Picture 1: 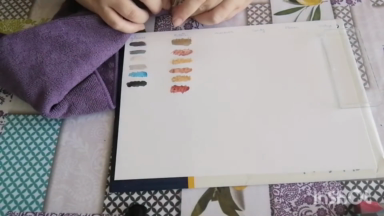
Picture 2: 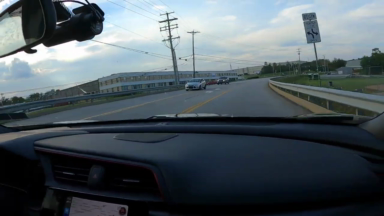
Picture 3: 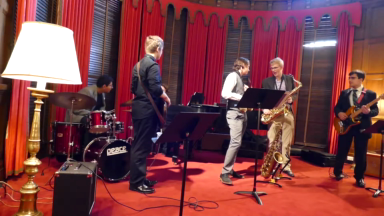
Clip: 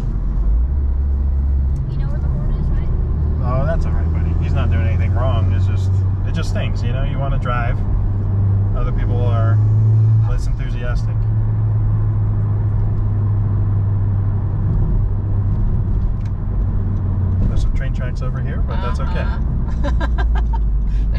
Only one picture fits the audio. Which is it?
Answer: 2